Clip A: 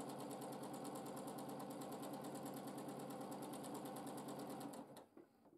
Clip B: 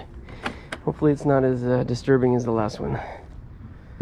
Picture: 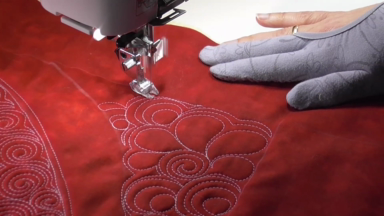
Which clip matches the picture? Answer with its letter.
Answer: A